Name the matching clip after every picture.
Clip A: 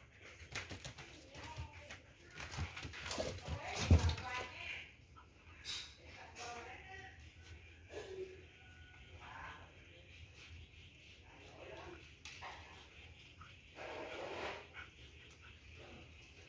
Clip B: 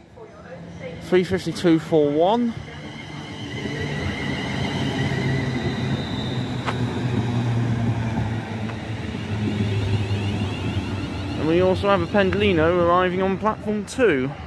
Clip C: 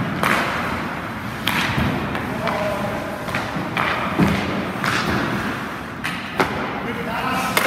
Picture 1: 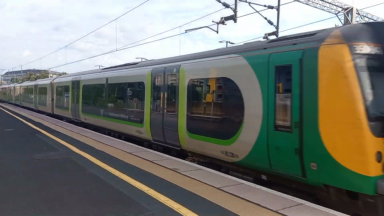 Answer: B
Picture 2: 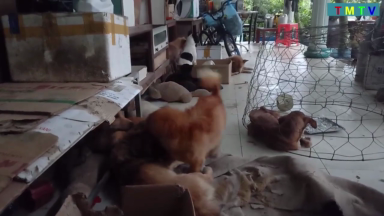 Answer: A